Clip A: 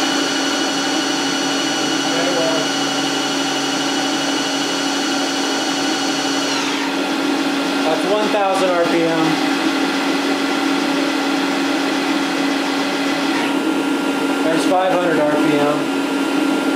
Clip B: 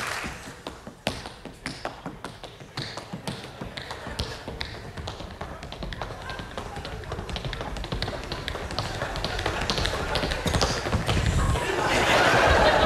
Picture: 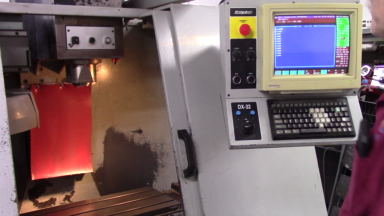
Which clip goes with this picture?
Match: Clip A